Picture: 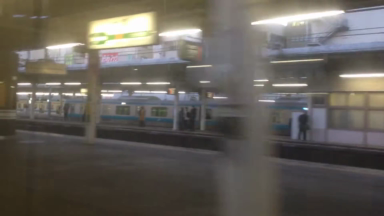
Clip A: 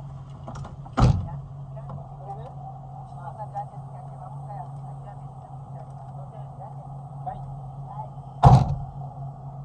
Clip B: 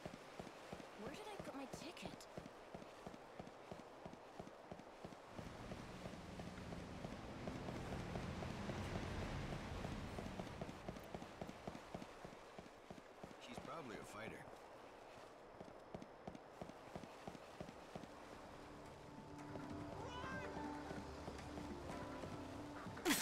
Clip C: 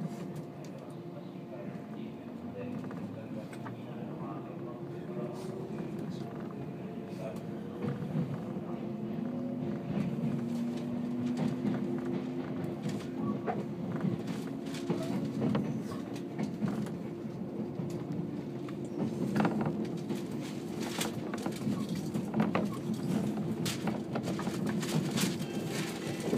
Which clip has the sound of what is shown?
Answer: C